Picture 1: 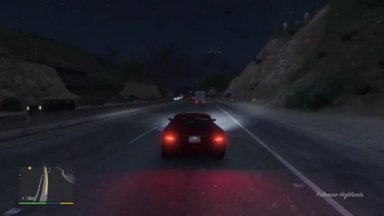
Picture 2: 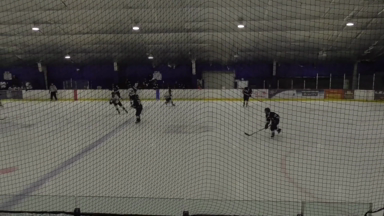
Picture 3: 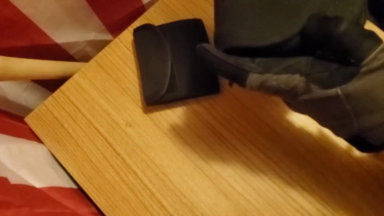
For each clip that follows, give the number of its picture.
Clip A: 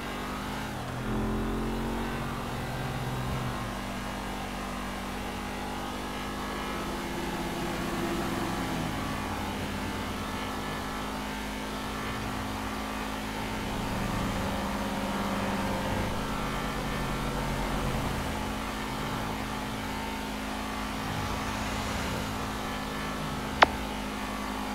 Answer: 1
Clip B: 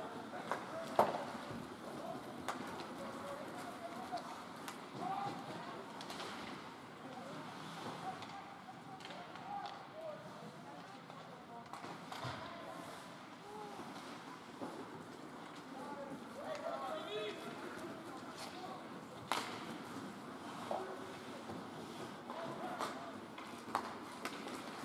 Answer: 2